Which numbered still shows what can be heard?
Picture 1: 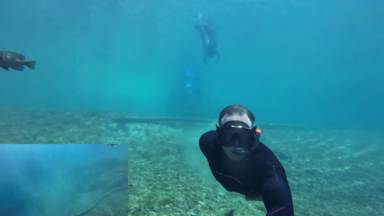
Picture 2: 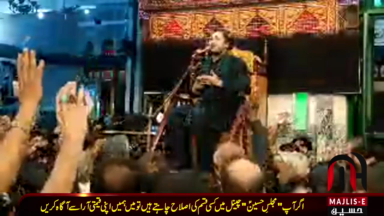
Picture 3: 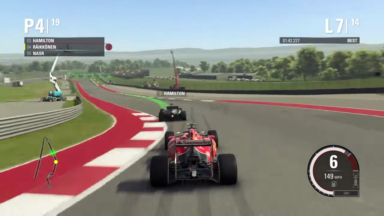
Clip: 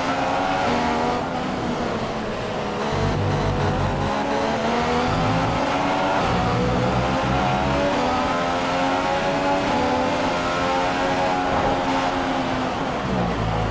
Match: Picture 3